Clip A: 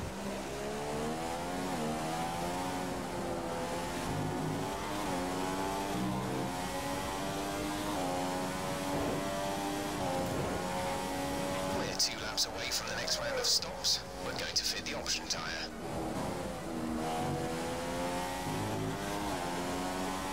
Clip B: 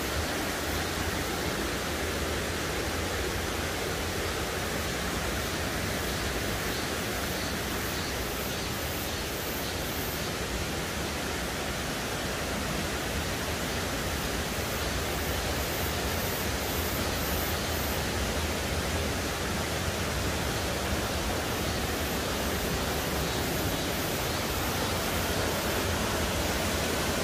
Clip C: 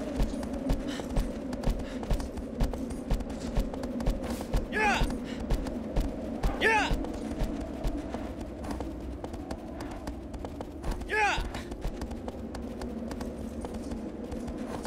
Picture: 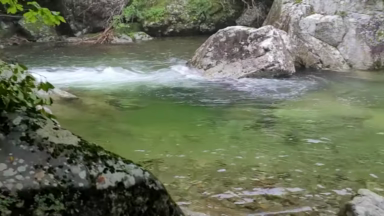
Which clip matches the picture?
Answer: B